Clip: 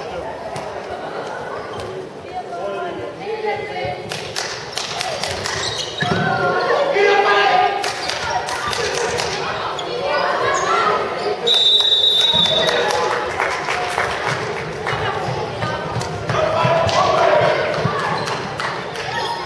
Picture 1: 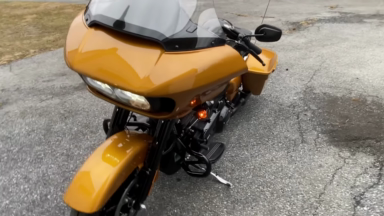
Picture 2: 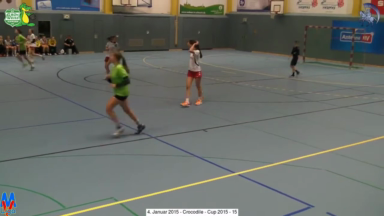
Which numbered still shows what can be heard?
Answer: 2